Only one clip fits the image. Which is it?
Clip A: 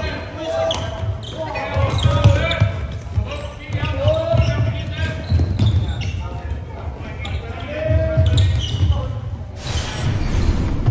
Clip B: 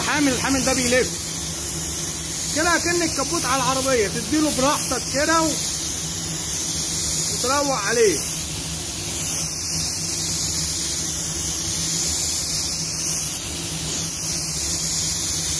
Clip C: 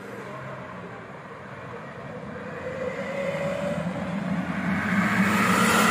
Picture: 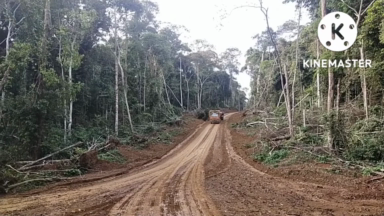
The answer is C